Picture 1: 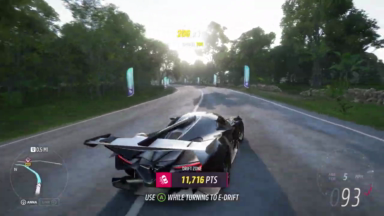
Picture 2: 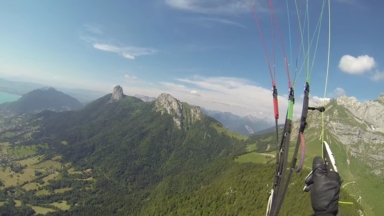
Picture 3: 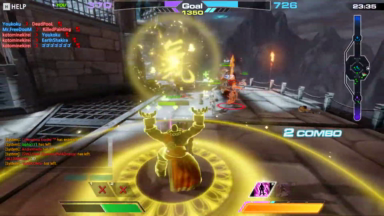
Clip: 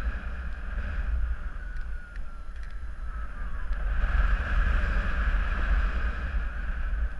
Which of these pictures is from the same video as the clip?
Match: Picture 2